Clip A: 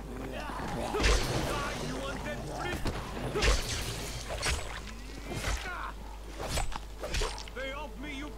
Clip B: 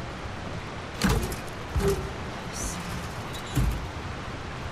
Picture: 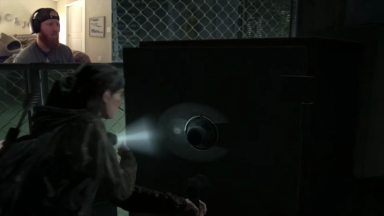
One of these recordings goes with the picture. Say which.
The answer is B